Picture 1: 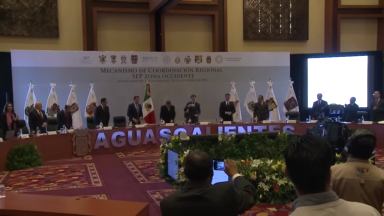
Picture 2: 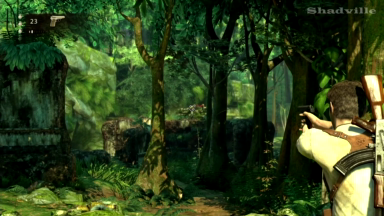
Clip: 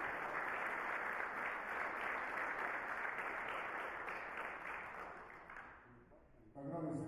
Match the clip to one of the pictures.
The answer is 1